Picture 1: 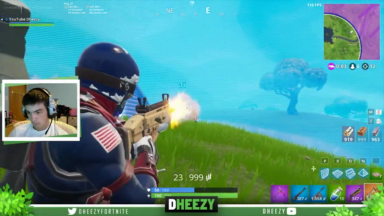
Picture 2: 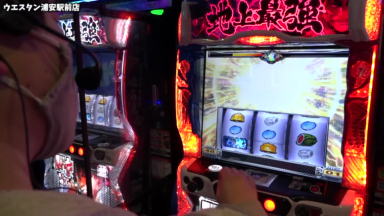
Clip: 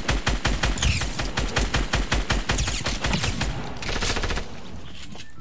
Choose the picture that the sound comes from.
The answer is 1